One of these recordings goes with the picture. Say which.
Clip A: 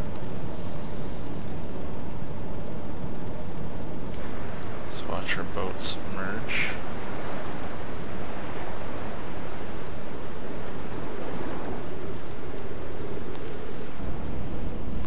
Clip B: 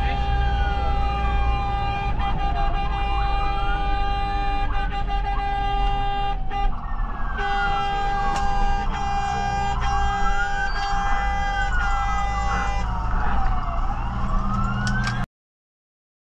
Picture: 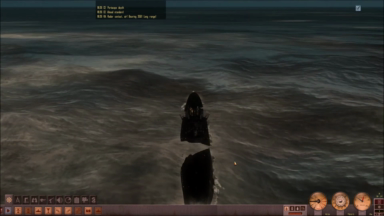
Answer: A